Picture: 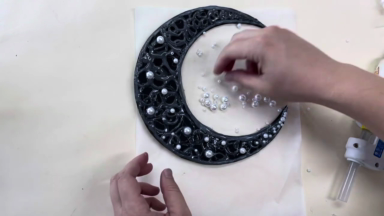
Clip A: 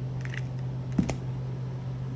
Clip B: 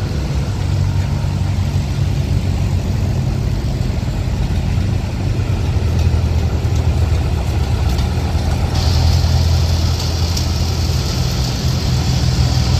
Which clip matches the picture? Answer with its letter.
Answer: A